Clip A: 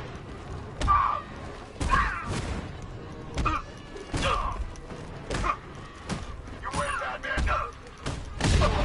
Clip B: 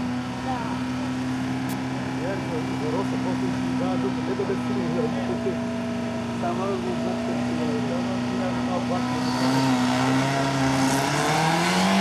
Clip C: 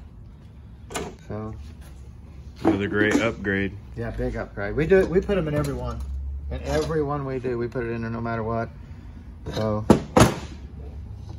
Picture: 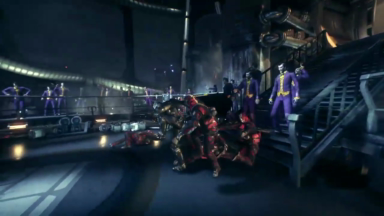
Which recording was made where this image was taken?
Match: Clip A